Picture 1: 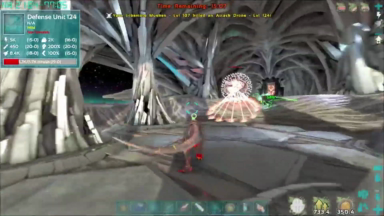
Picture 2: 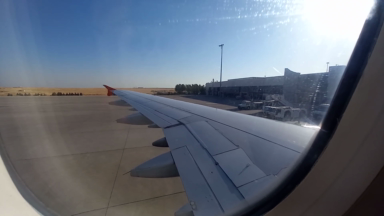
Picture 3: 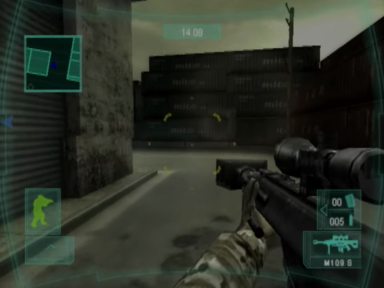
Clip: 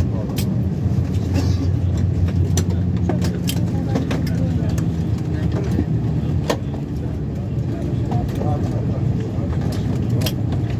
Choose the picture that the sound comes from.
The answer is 2